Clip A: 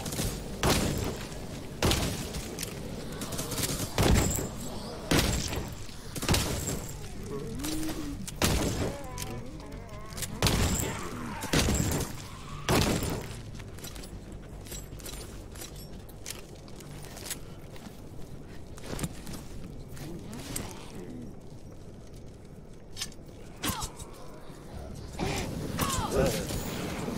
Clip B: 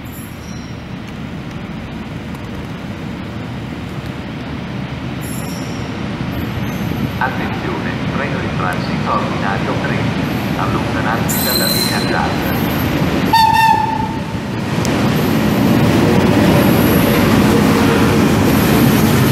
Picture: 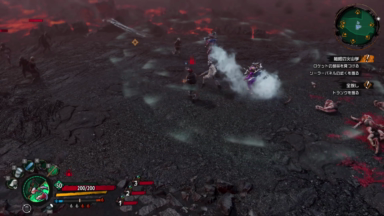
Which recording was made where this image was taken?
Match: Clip A